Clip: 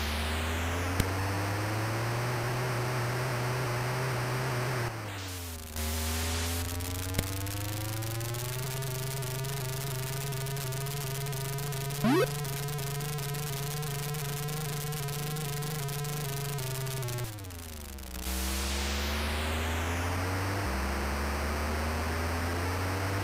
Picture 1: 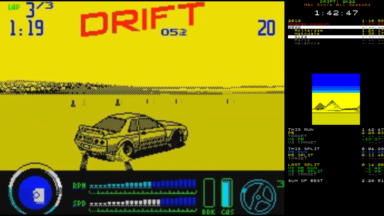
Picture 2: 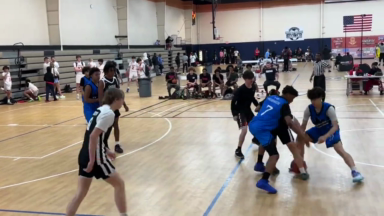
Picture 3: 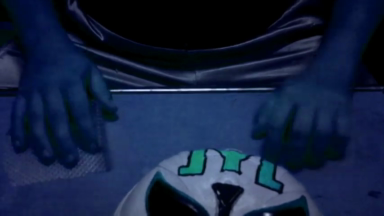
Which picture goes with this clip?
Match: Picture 1